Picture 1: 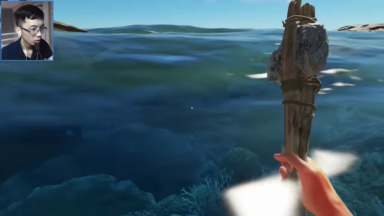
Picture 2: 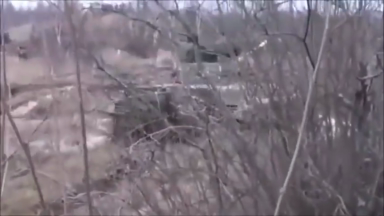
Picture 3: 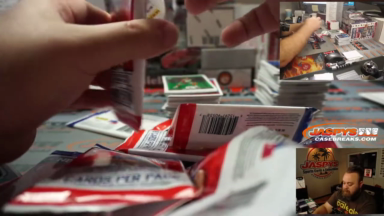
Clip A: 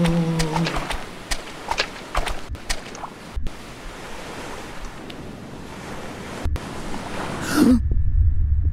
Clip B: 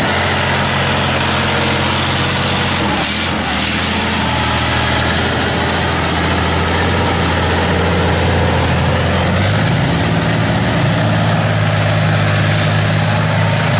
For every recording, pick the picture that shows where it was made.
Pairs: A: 1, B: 2